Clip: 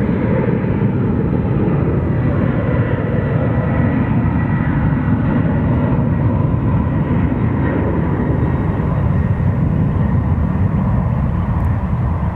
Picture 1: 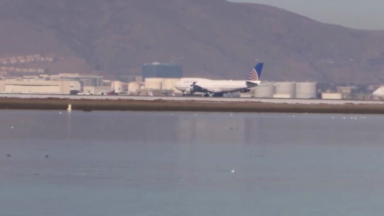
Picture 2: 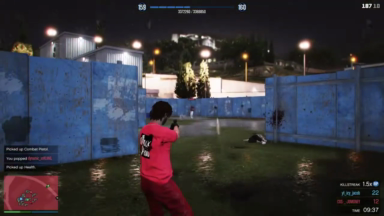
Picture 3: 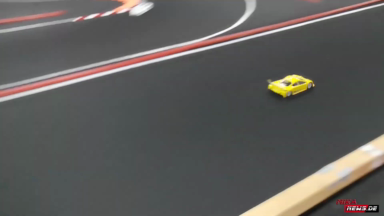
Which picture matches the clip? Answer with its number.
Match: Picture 1